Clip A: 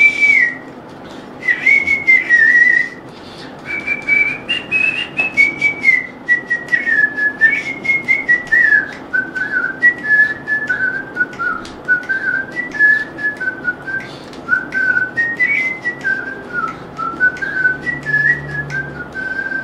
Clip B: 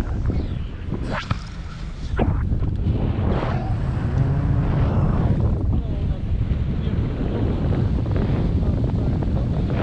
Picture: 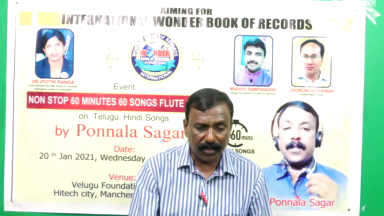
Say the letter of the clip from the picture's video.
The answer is A